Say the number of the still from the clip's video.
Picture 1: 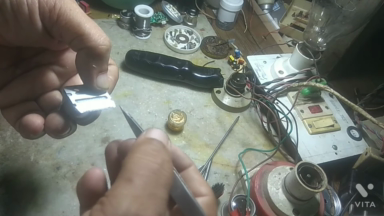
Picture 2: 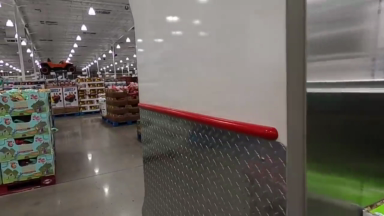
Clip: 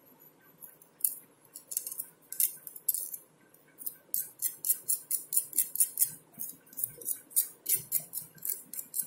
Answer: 1